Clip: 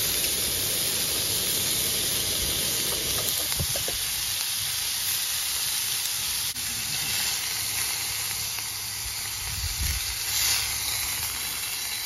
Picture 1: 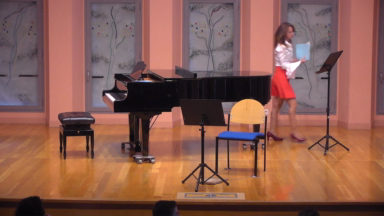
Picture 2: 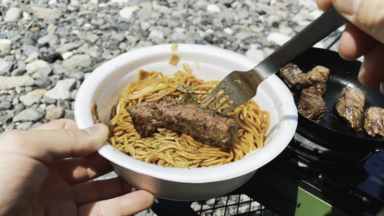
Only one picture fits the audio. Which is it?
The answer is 2